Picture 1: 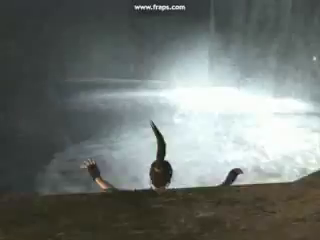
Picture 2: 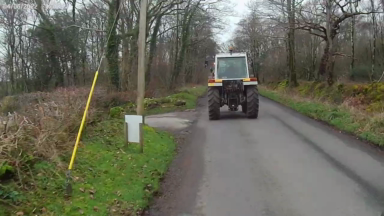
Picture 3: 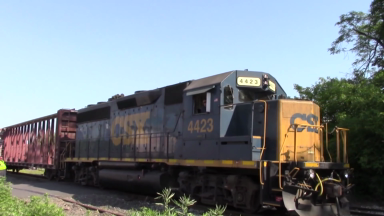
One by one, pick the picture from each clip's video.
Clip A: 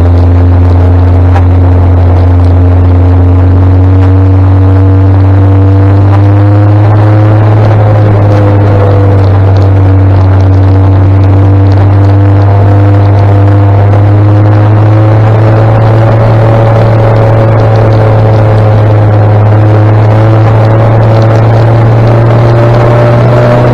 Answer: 2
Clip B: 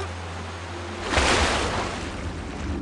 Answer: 1